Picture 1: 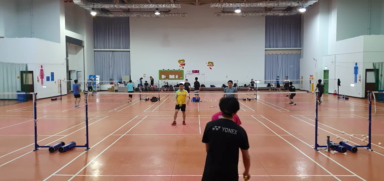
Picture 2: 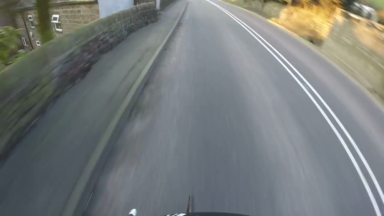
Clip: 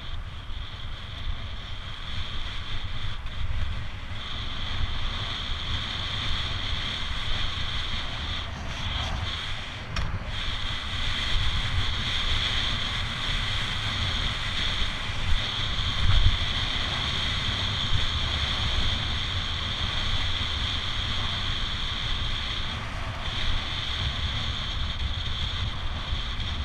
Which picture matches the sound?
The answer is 2